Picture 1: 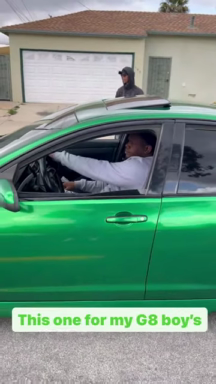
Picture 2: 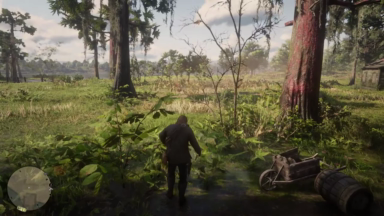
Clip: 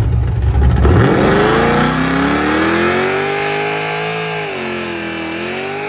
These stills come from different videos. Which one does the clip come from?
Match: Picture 1